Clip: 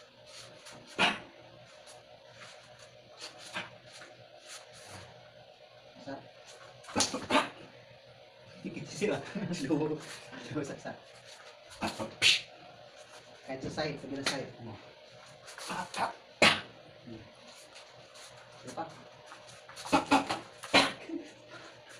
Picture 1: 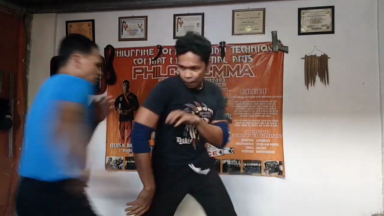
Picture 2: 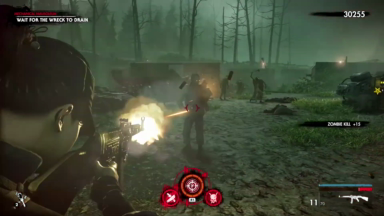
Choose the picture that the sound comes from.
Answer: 1